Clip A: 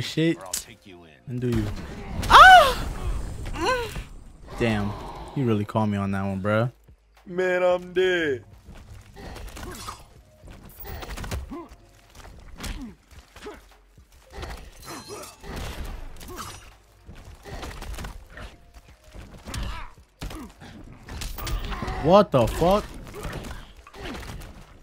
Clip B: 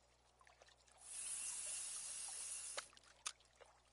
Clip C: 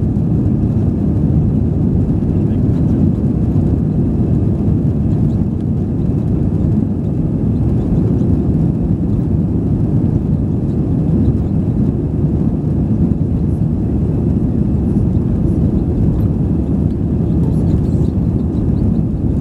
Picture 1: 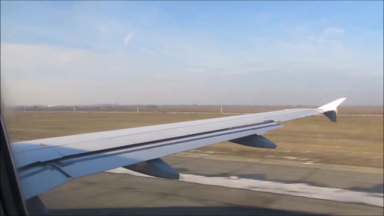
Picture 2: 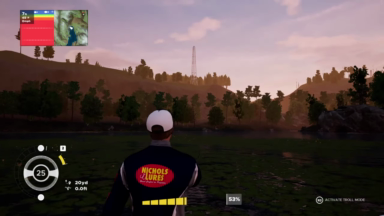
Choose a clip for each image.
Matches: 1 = C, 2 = B